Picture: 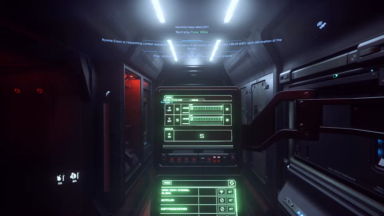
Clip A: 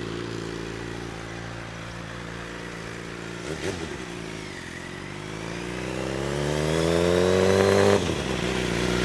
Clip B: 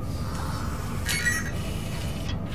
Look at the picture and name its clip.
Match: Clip B